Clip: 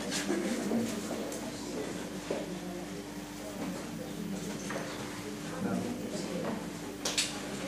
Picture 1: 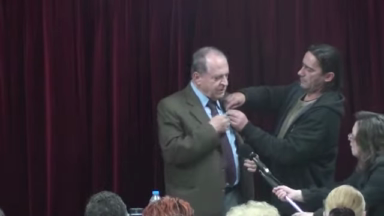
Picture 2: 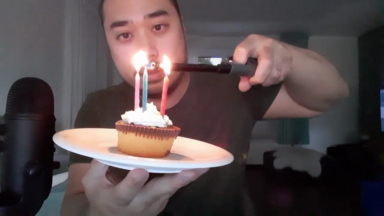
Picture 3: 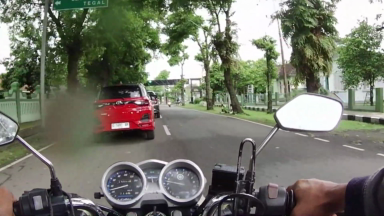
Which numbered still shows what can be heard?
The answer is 1